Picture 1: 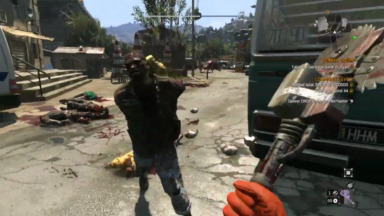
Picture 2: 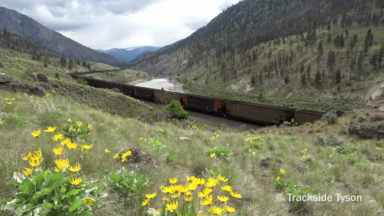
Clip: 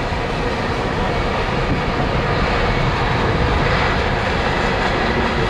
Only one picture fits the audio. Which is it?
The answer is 2